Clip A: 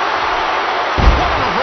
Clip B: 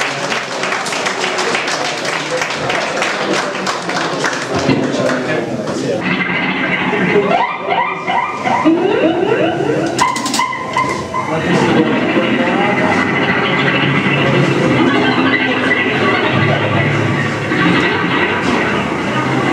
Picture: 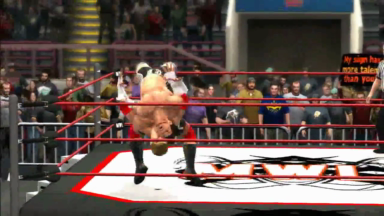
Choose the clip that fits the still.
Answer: A